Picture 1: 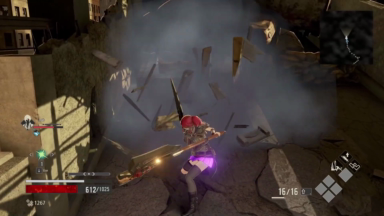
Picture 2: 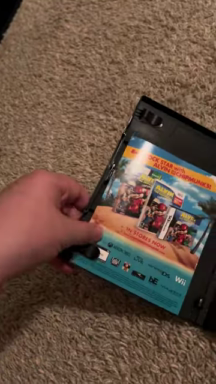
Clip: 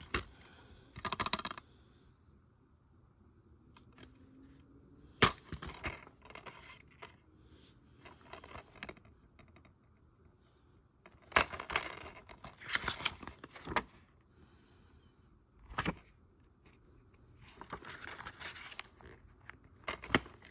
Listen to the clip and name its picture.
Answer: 2